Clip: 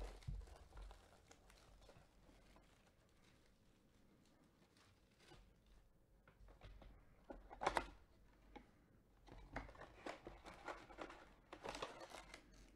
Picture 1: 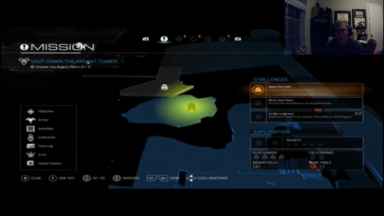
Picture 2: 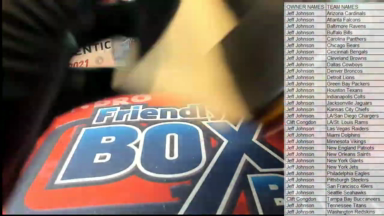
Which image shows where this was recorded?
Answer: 2